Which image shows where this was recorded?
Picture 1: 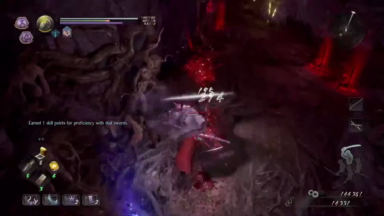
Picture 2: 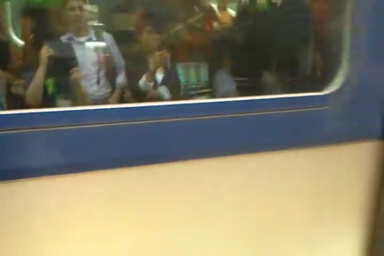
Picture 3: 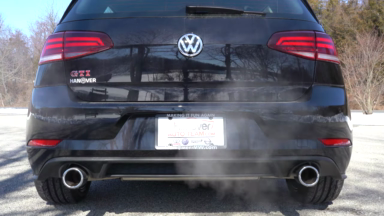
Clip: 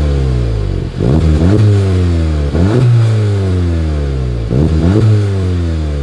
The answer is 3